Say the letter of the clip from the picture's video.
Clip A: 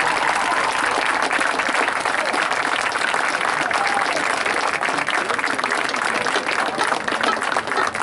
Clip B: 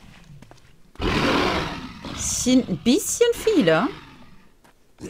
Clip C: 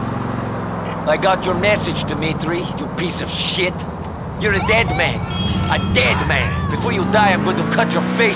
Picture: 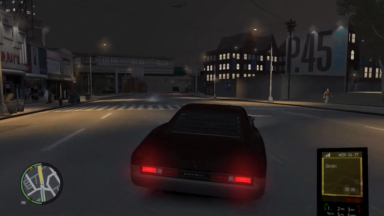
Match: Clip C